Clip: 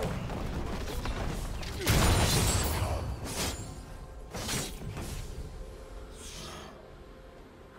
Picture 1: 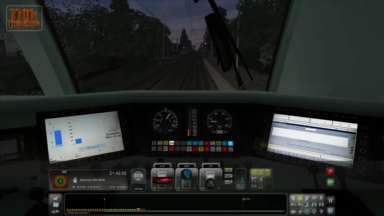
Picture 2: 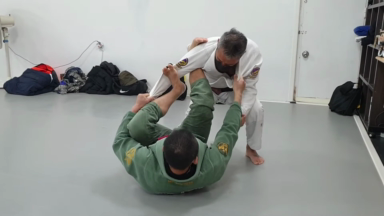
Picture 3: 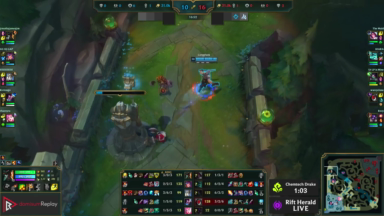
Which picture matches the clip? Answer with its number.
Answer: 3